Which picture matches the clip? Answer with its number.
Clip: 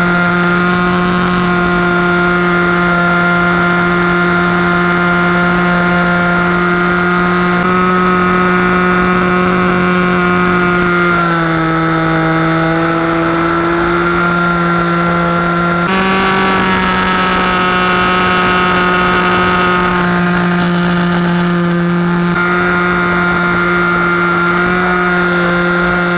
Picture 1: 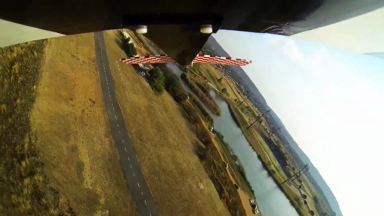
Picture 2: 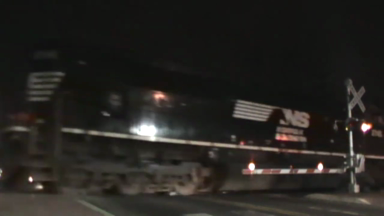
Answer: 1